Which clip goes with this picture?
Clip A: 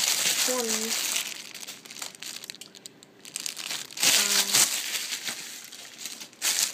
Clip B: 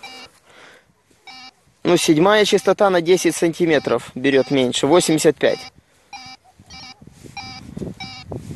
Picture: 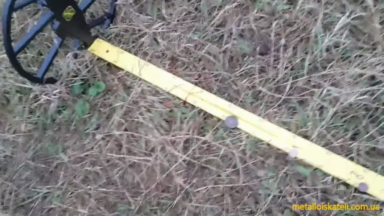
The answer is B